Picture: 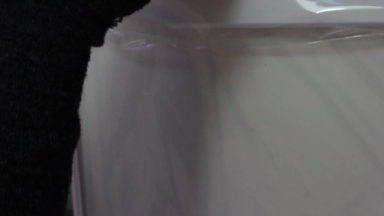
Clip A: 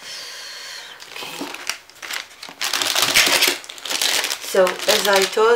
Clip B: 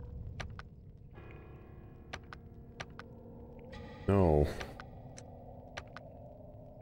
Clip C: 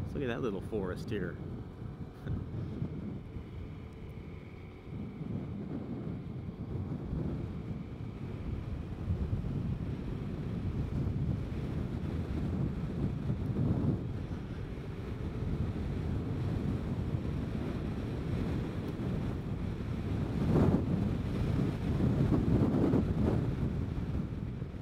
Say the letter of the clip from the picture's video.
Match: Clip A